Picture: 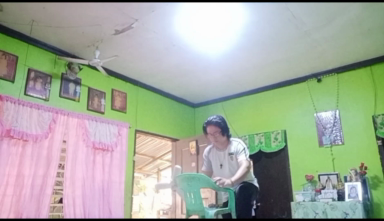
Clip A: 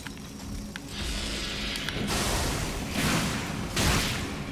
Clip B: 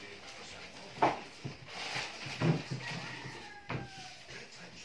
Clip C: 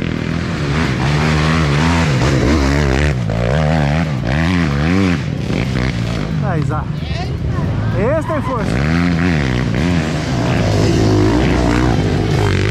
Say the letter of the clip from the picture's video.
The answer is B